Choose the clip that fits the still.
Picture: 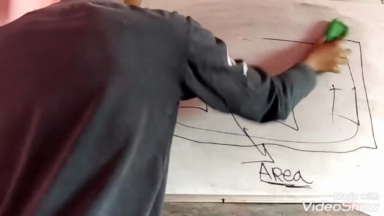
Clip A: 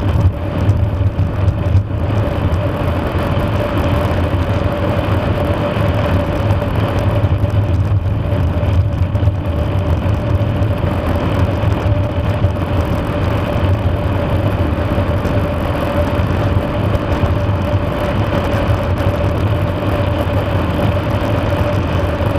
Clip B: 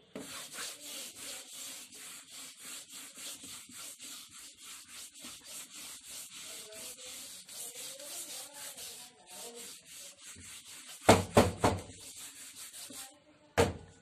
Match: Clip B